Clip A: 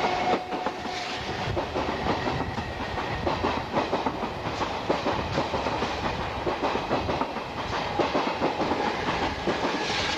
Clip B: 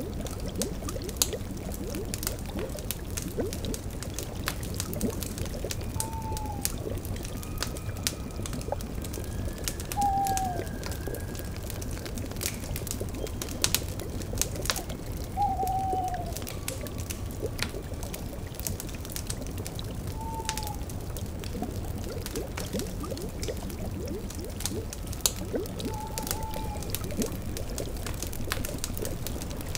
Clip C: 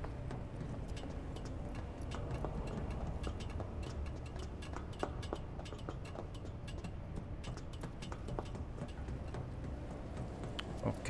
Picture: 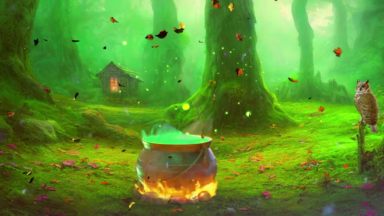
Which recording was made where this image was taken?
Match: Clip B